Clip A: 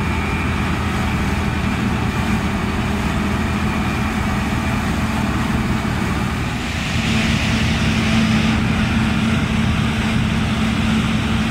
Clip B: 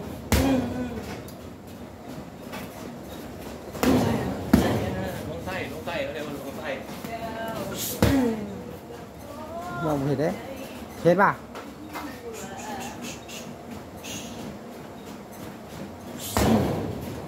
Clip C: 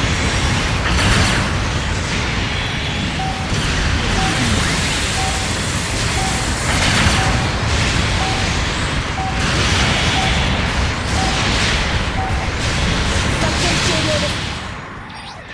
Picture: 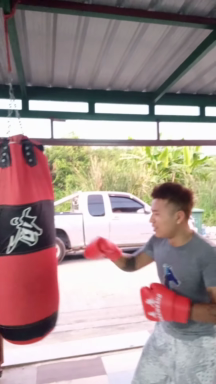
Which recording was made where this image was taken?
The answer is B